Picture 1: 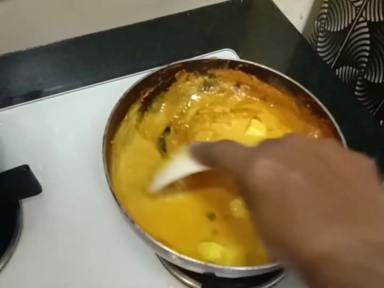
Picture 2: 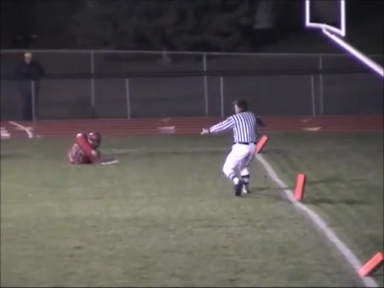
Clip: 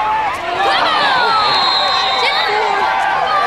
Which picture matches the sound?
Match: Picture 2